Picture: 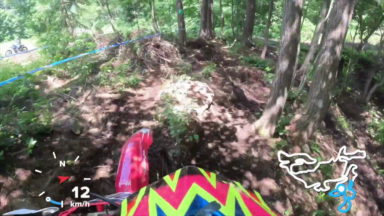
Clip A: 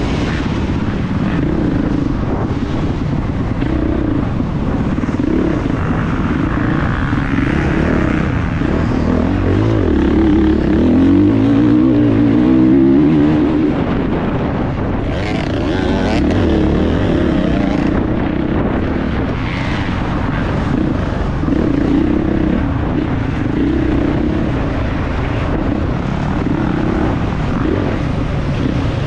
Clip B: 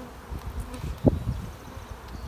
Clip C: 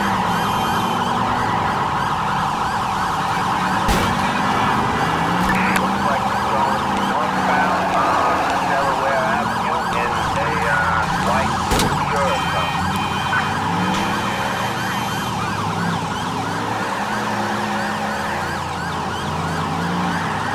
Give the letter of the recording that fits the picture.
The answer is A